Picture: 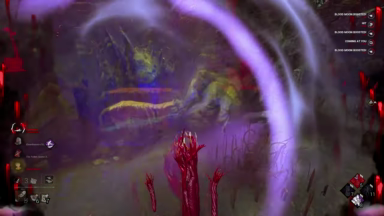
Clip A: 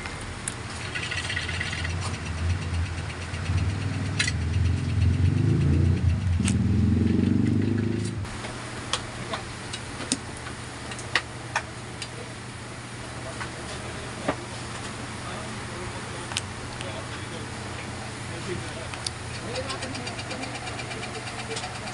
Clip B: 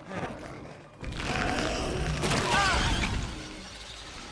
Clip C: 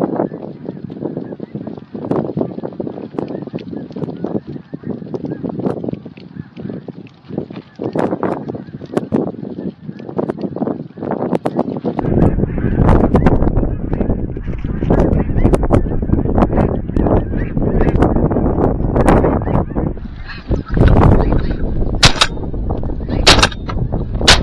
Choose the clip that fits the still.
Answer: B